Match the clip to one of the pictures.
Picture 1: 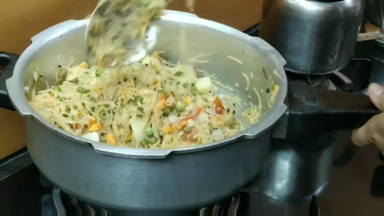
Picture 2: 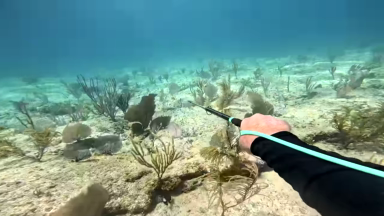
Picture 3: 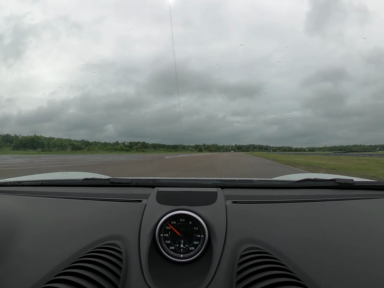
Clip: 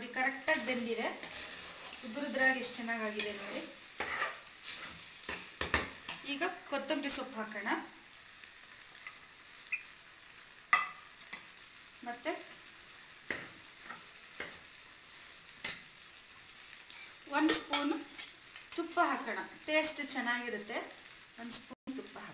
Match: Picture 1